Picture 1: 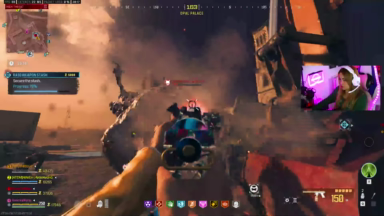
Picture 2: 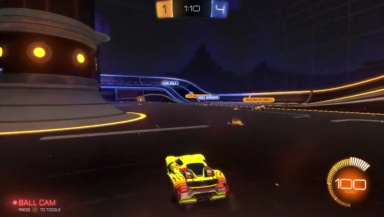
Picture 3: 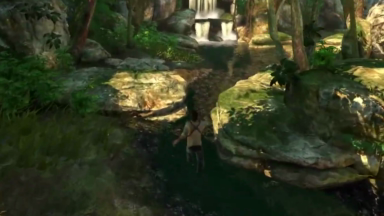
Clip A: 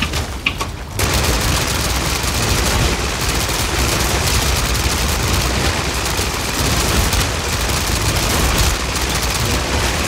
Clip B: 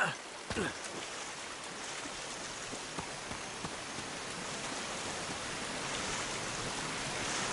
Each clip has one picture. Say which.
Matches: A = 1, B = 3